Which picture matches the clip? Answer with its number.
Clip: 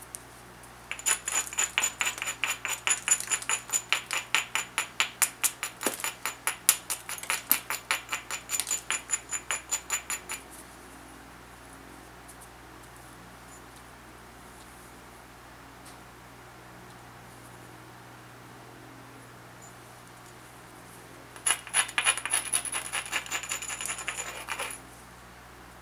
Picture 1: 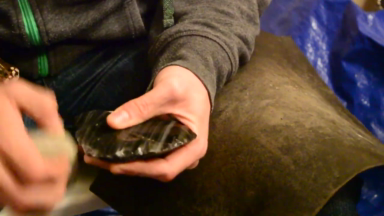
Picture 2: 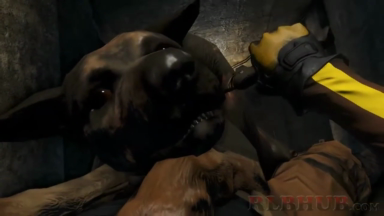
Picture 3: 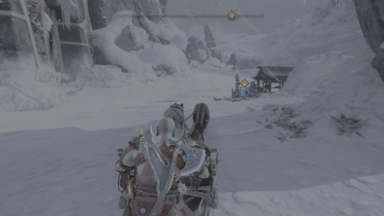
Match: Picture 1